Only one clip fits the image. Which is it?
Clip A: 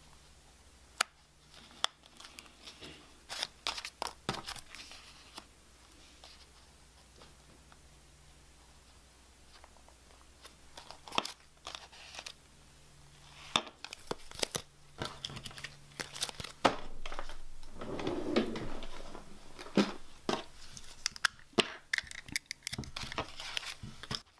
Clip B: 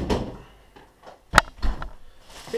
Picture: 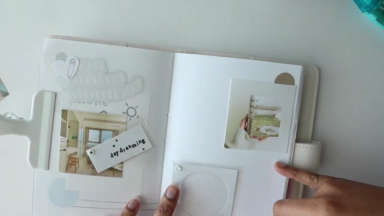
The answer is A